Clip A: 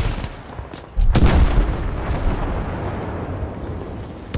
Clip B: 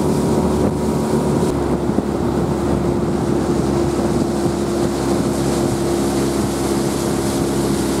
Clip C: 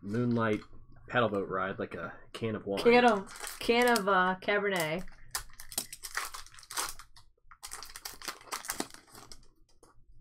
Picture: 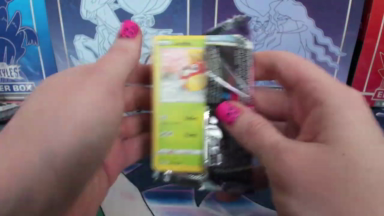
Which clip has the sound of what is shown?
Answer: C